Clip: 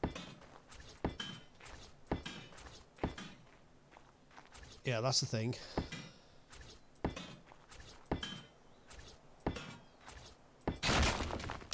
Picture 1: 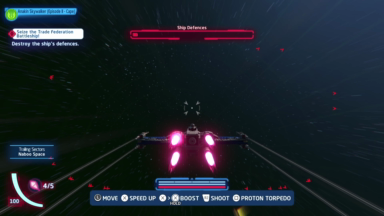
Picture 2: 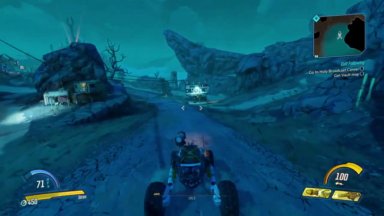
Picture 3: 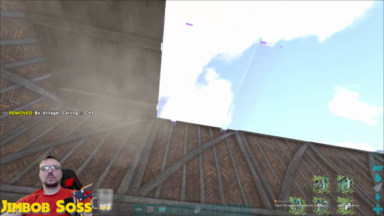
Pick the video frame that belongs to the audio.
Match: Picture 3